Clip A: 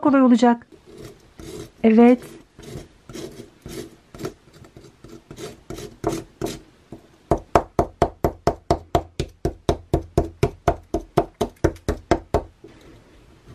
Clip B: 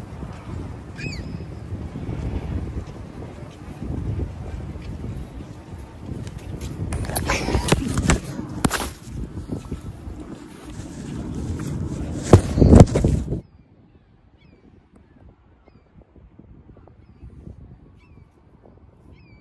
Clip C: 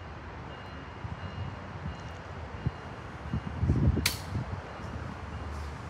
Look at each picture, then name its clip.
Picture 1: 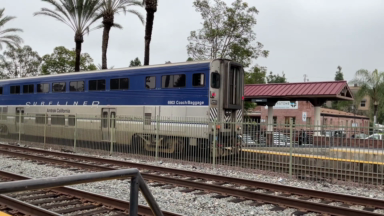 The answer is C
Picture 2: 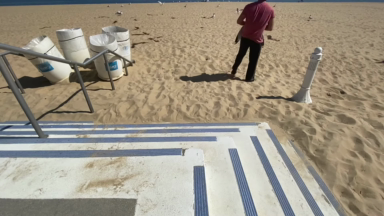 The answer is B